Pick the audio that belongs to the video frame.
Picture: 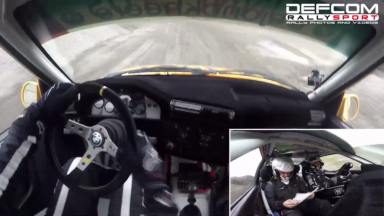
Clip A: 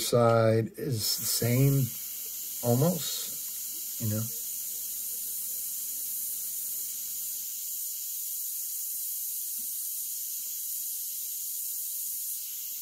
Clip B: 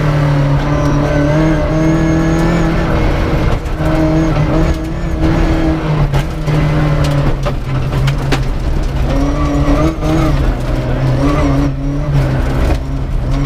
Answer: B